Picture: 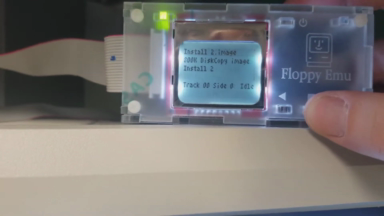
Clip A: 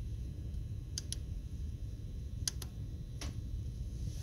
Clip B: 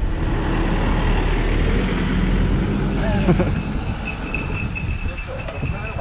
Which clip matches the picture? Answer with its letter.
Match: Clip A